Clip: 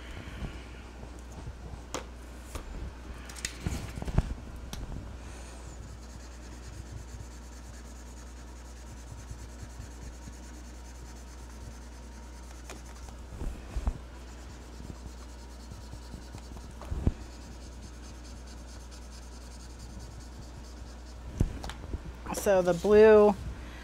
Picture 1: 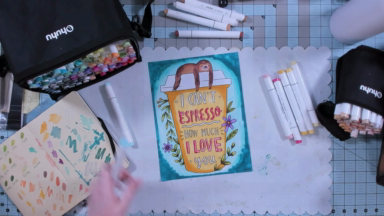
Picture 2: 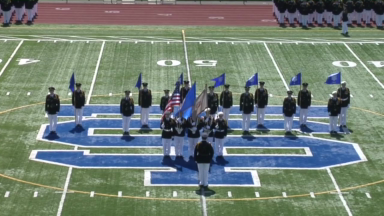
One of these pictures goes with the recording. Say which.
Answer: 1